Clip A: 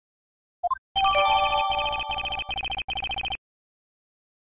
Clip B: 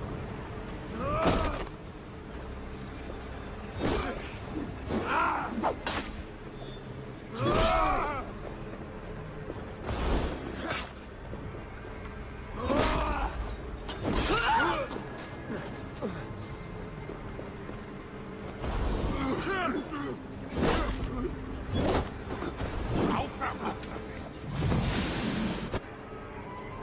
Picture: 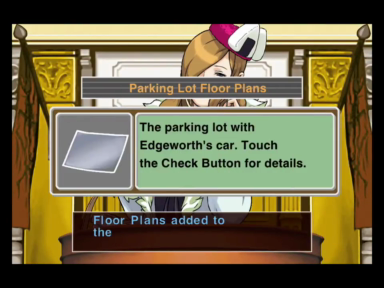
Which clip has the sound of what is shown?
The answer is A